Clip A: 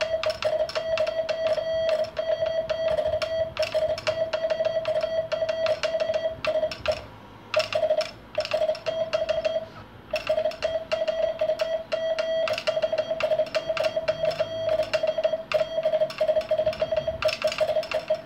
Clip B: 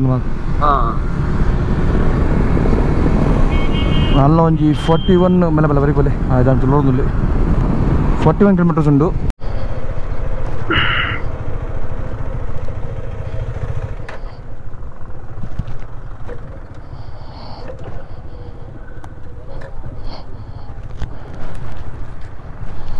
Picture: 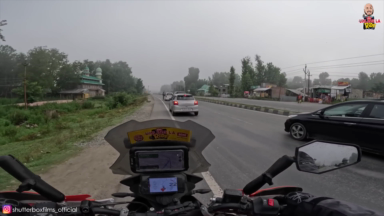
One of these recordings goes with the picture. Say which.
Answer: B